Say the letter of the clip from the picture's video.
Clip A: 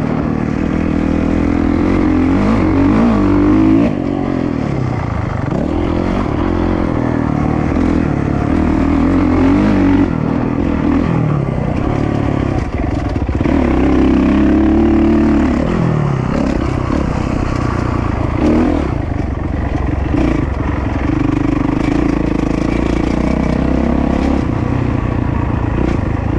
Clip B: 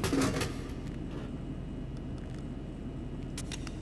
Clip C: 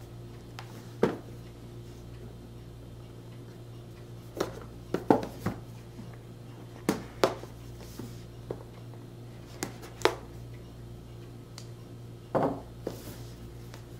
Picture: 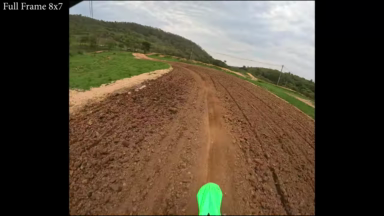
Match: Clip A